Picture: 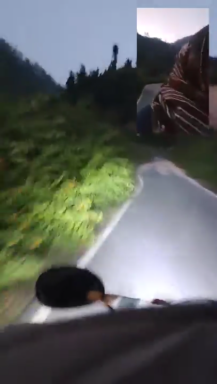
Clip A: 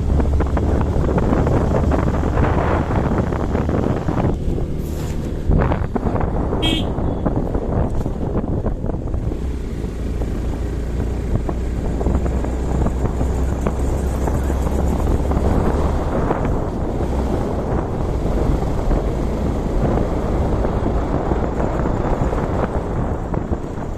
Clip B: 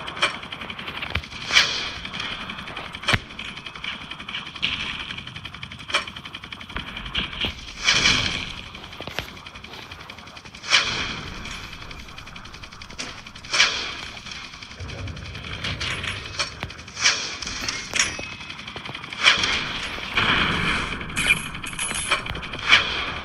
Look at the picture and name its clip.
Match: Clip A